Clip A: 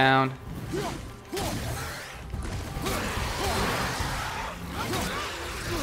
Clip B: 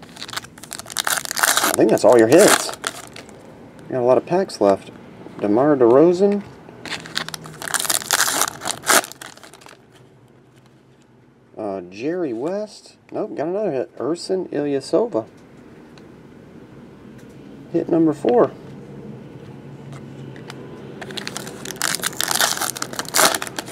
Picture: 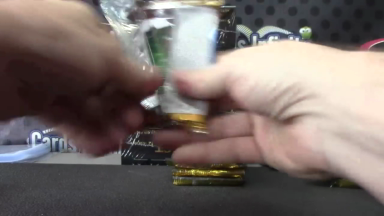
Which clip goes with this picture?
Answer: B